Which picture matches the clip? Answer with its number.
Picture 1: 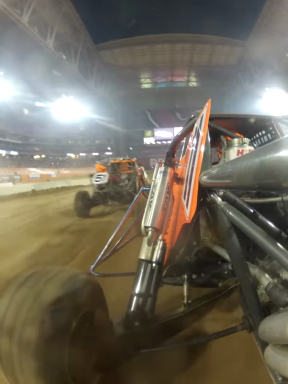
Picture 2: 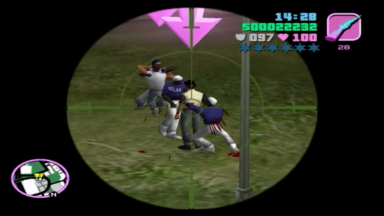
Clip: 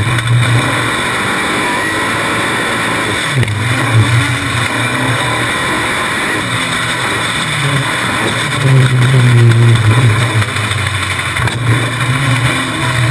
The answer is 1